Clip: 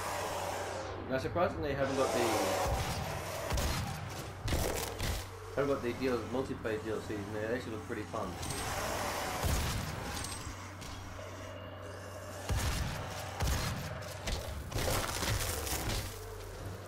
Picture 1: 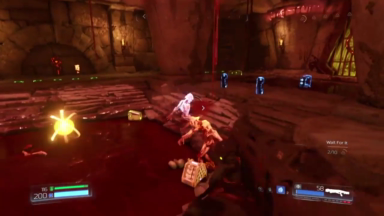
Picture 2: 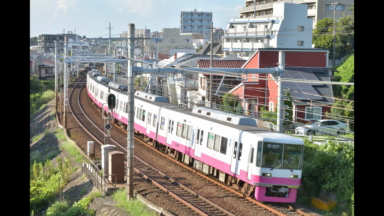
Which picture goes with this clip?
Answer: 1